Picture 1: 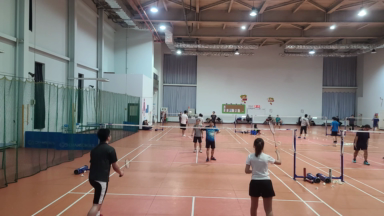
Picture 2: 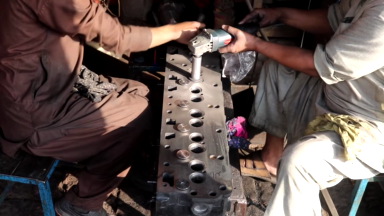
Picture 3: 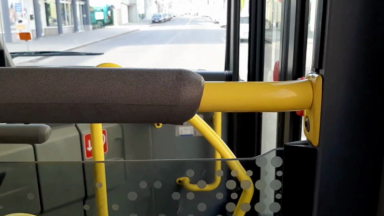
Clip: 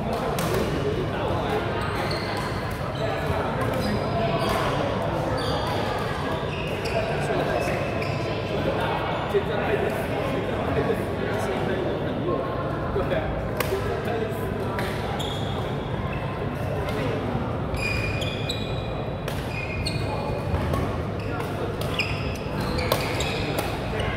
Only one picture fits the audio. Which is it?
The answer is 1